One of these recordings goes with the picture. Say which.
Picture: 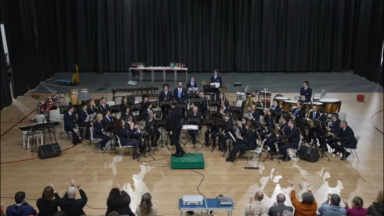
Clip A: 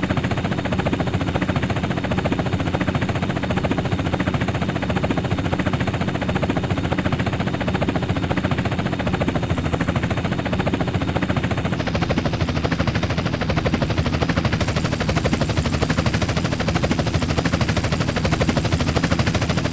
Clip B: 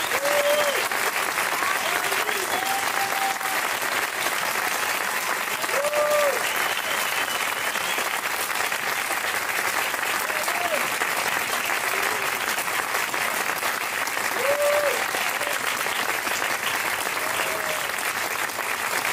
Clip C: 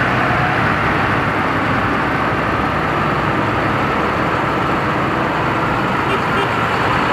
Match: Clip B